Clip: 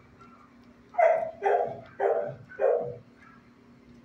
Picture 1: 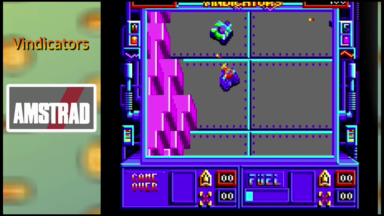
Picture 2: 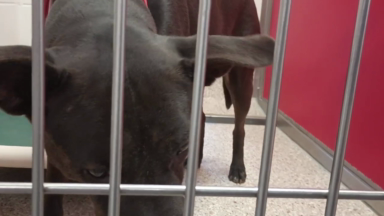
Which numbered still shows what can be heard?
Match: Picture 2